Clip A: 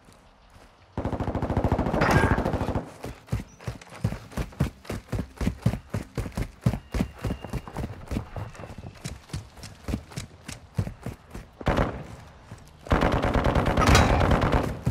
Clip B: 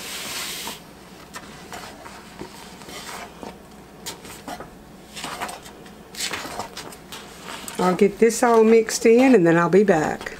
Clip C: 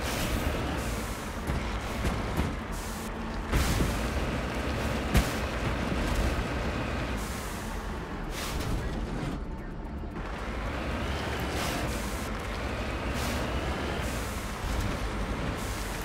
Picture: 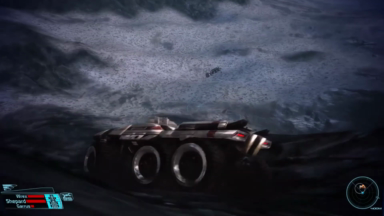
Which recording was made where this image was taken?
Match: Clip C